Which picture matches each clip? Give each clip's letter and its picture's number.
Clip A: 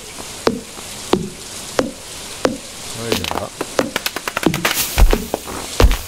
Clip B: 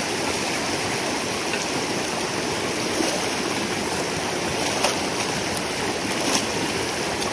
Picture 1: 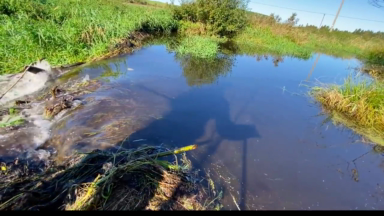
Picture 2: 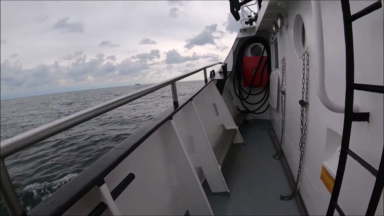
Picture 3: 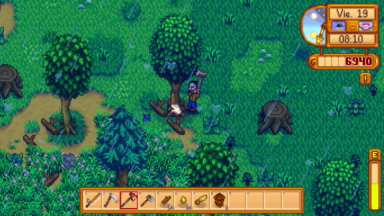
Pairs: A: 3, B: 1